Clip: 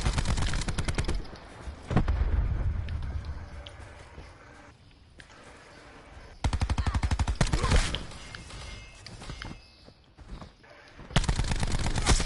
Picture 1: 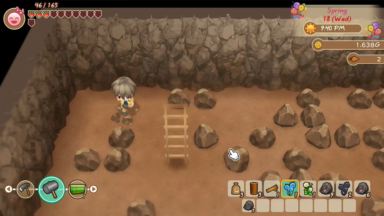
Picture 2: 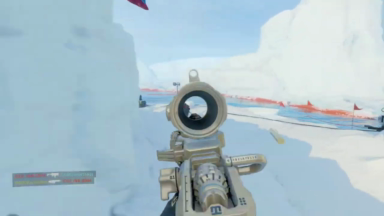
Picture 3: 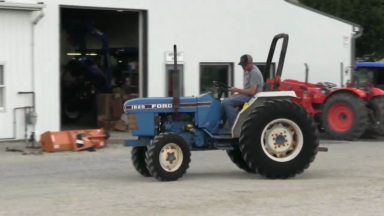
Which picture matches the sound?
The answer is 2